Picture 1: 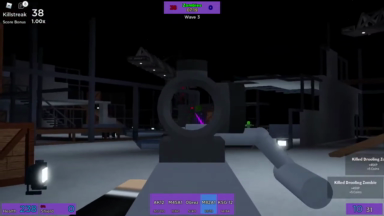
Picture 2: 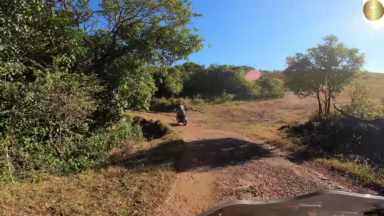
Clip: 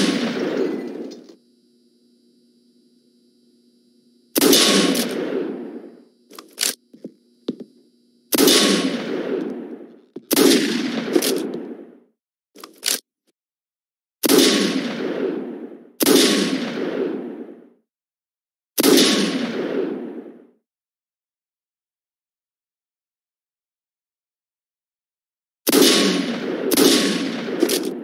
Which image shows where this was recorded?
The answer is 1